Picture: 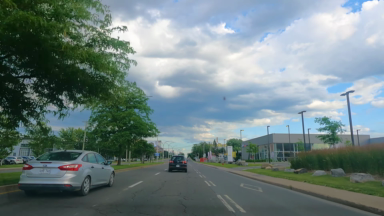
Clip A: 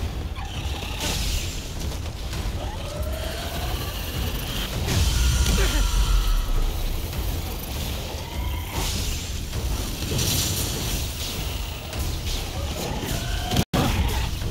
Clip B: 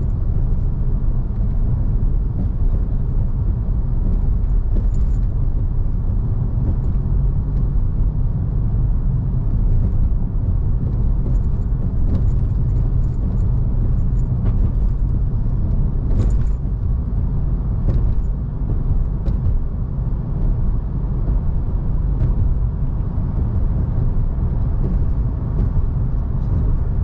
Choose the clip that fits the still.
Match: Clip B